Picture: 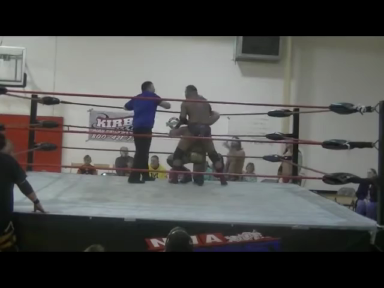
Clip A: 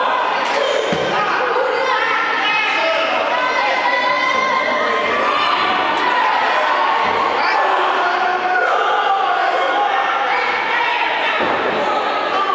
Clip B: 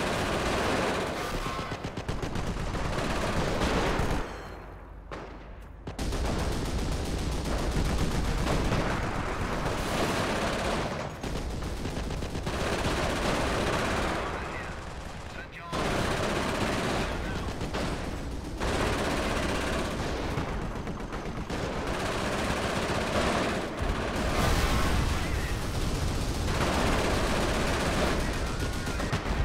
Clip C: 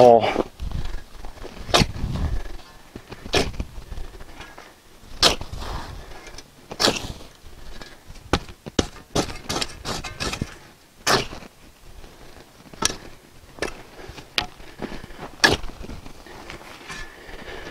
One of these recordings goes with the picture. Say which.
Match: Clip A